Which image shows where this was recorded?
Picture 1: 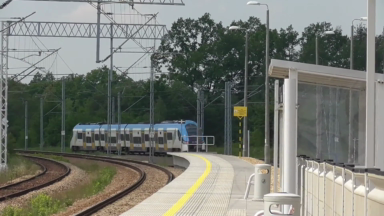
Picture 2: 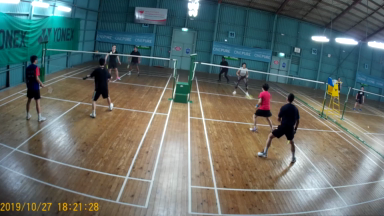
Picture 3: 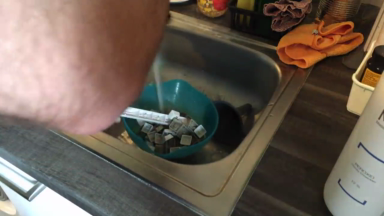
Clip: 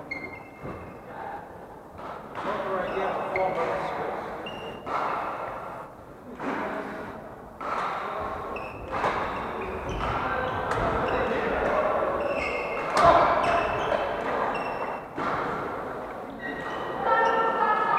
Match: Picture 2